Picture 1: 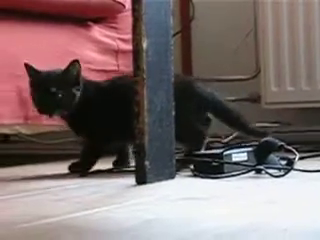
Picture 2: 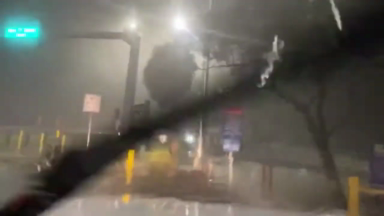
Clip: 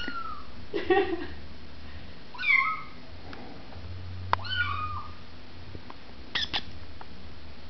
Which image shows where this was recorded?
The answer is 1